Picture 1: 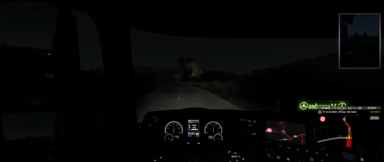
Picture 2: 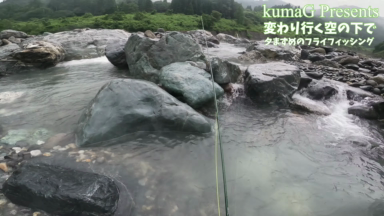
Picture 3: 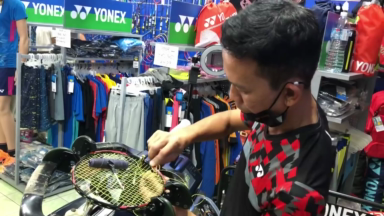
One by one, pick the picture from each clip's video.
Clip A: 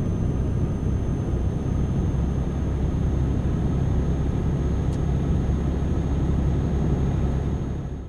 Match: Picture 1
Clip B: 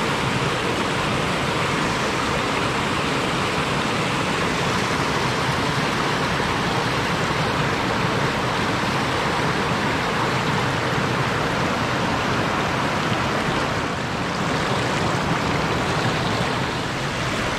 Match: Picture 2